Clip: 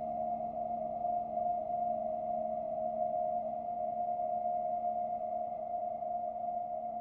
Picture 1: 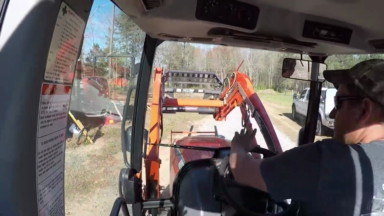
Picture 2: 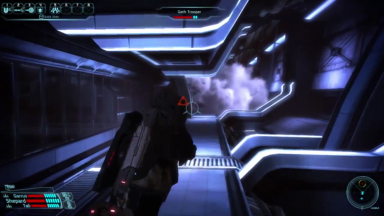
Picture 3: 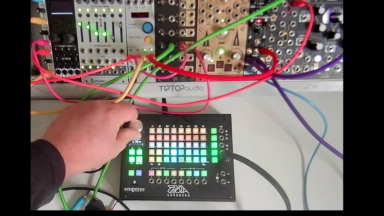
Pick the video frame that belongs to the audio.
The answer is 3